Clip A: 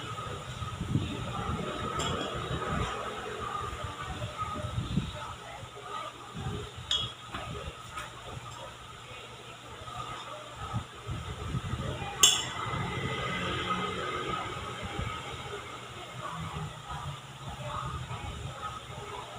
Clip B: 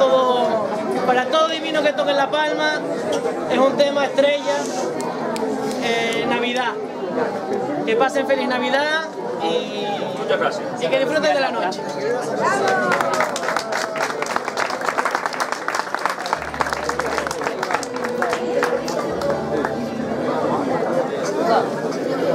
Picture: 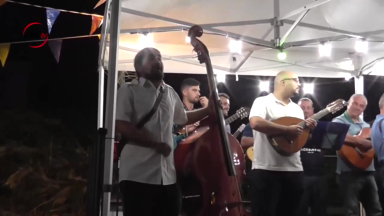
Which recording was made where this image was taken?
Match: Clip B